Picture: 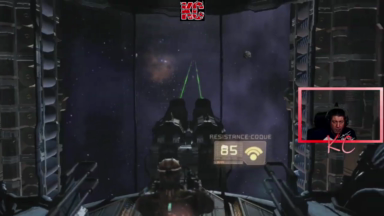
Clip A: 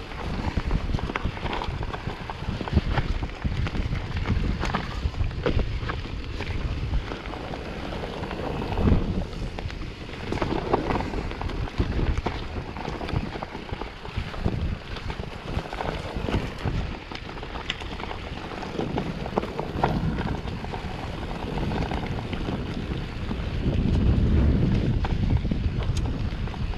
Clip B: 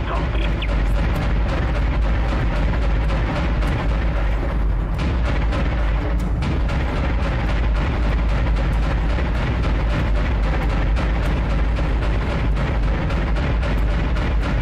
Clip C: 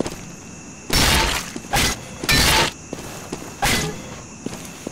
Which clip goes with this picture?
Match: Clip B